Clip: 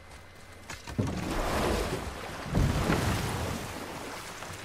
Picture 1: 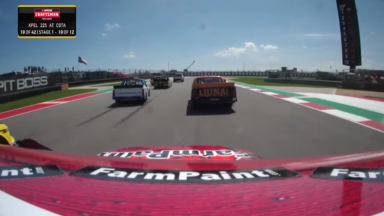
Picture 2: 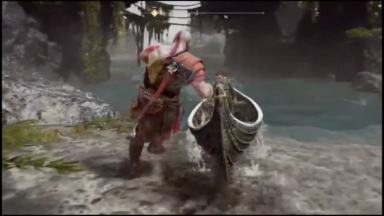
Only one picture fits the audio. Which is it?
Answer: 2